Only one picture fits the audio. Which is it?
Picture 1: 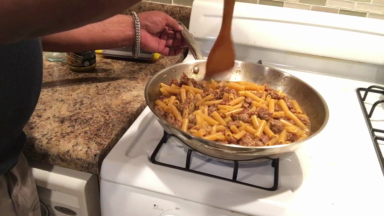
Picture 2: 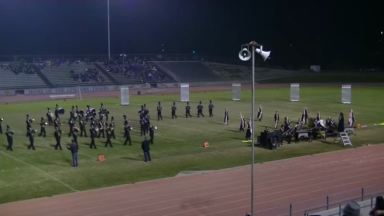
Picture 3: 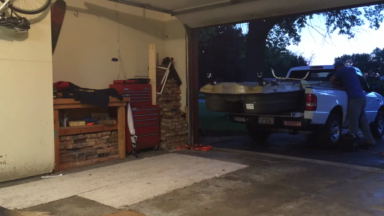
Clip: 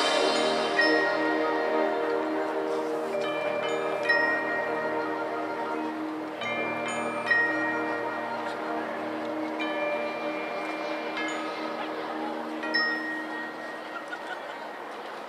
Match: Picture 2